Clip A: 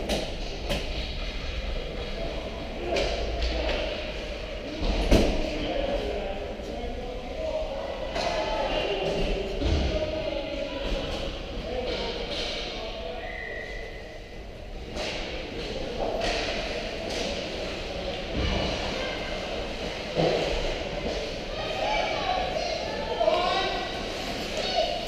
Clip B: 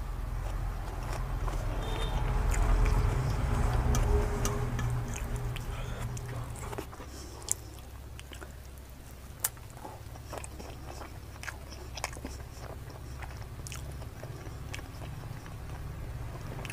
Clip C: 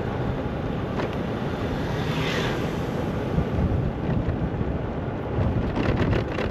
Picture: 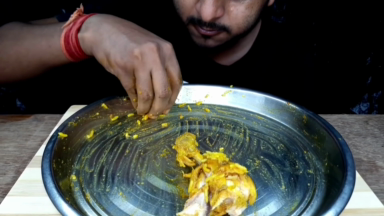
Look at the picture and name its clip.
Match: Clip B